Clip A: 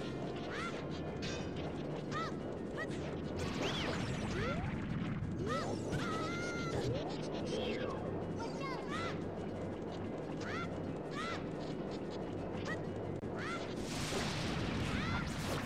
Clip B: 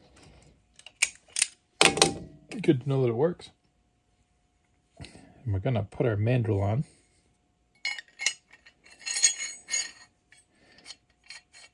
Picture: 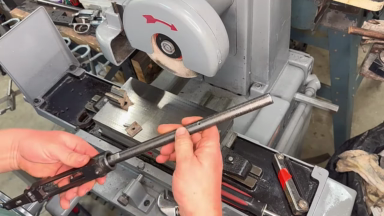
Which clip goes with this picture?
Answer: B